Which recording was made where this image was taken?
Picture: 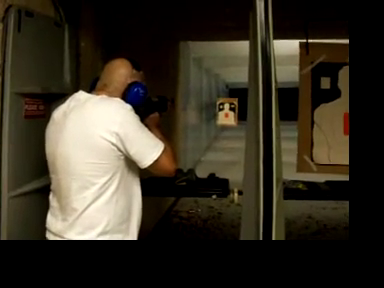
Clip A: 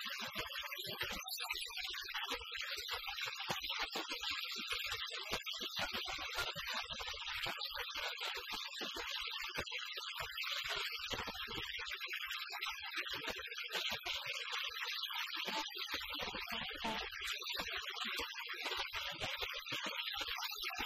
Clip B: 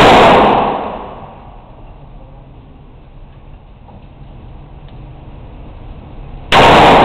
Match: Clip B